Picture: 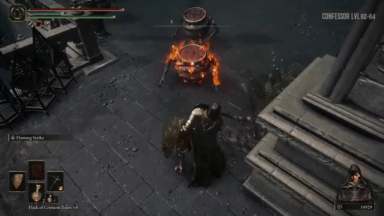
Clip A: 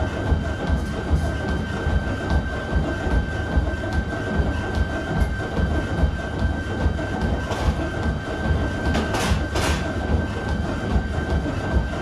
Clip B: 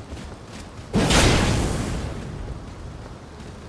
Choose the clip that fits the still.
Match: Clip B